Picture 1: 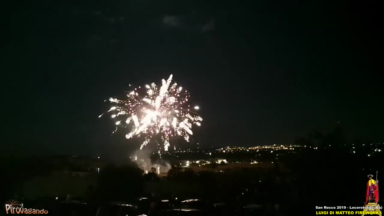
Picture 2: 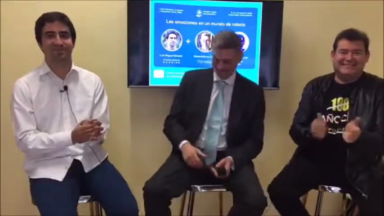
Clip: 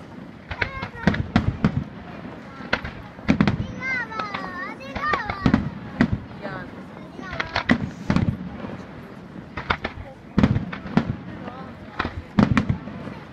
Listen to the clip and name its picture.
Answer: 1